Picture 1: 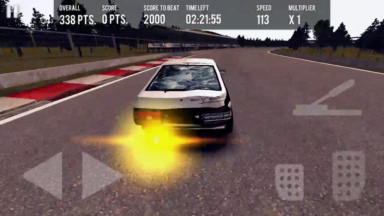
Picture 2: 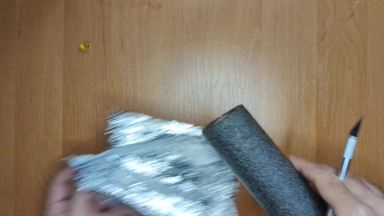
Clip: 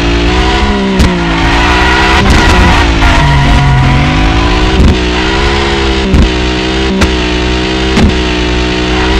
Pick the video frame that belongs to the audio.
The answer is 1